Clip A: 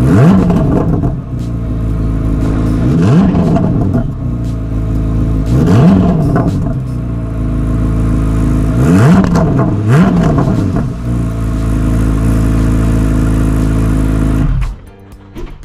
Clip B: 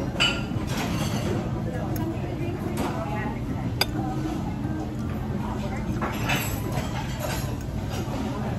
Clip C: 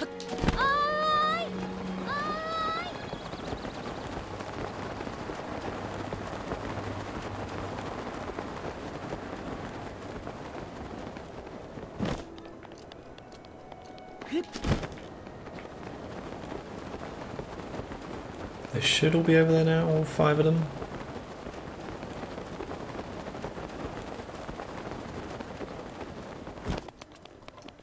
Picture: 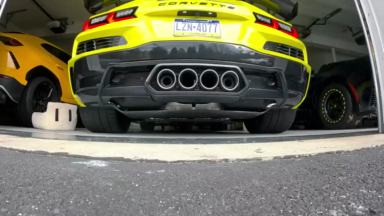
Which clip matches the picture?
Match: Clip A